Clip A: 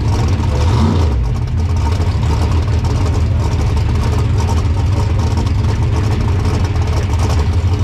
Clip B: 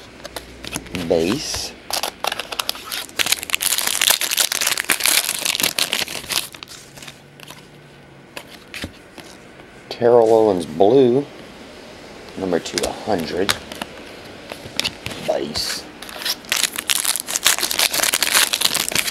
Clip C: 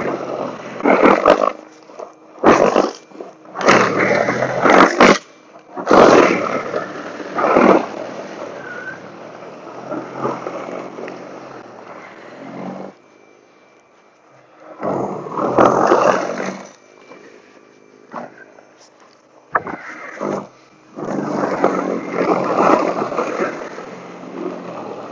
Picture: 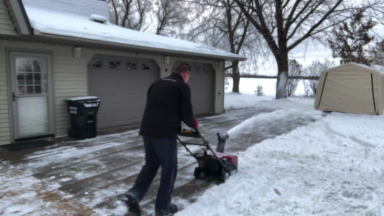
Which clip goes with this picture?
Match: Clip C